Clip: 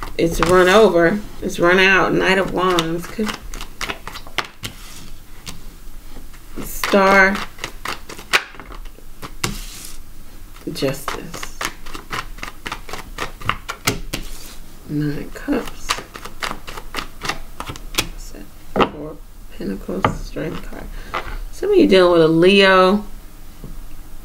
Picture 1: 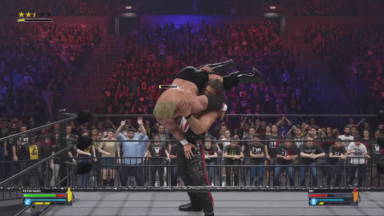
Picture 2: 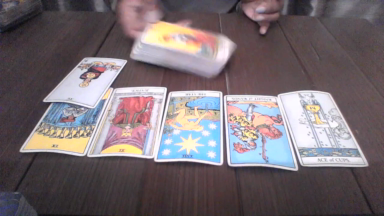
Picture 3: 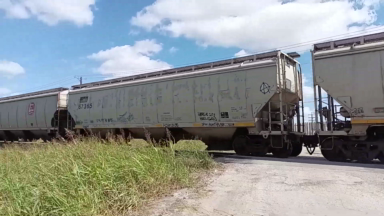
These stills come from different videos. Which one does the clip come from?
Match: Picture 2